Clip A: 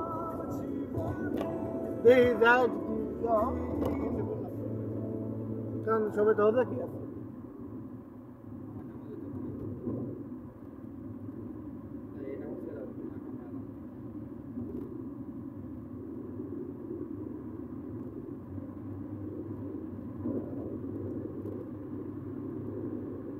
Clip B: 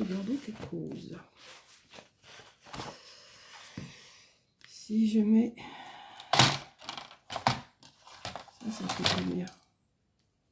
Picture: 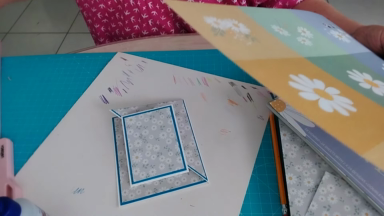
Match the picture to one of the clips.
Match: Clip B